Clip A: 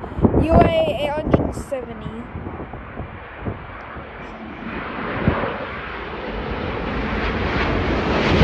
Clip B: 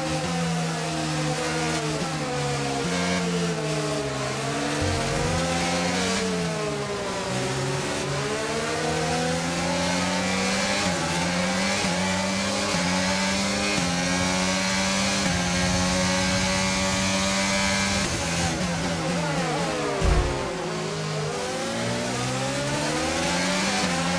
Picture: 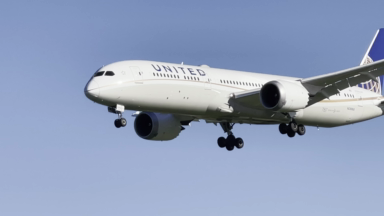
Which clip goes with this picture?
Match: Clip A